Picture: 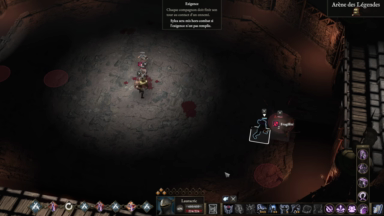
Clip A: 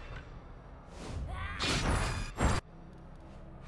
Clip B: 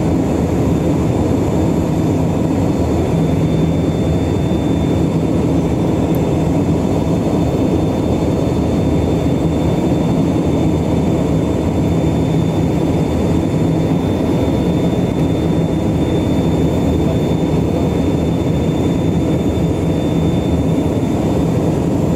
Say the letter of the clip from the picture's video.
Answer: A